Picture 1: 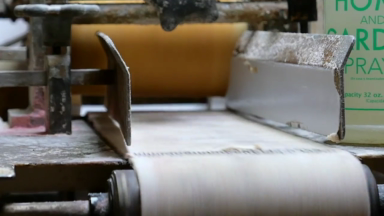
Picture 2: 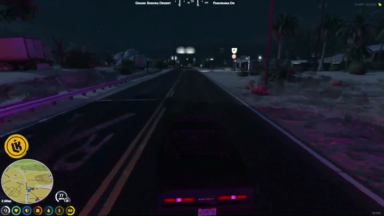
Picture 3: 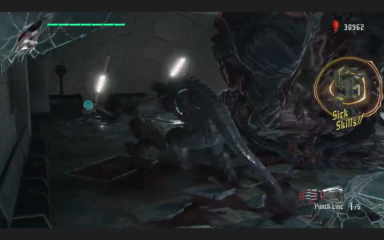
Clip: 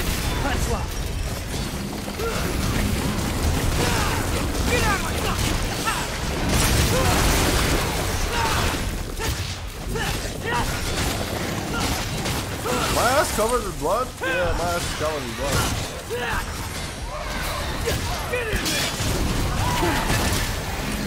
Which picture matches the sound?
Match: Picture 3